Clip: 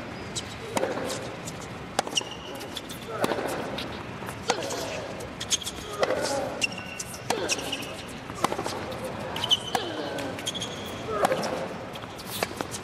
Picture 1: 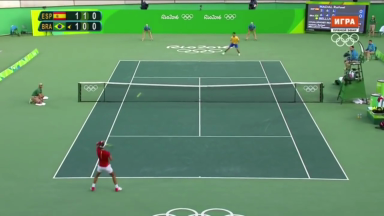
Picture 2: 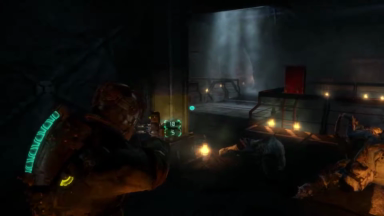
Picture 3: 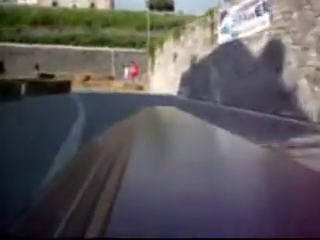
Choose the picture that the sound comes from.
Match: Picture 1